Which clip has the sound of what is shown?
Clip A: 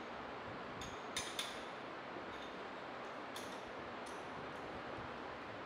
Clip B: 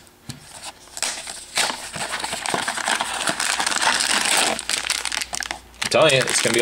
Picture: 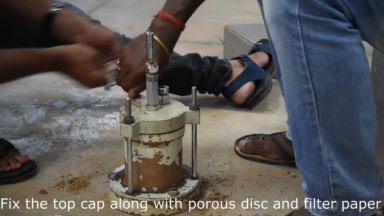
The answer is A